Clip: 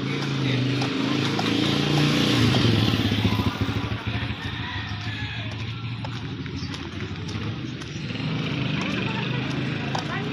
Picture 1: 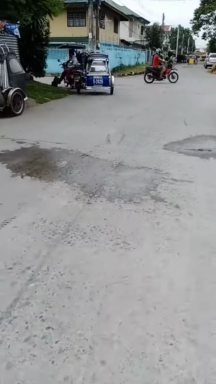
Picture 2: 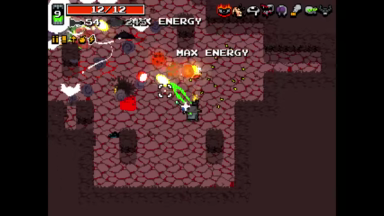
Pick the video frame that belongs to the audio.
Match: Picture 1